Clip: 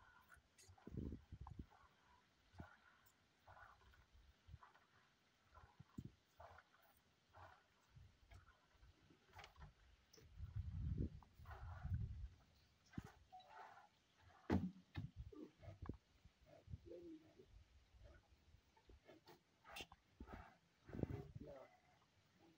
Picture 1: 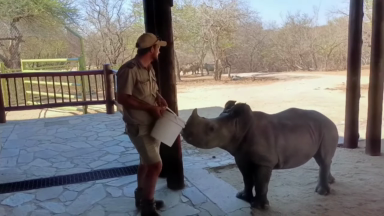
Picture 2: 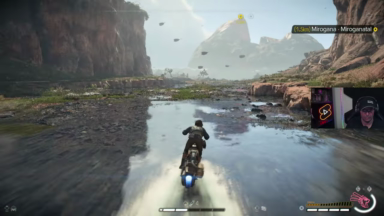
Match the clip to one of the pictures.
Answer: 1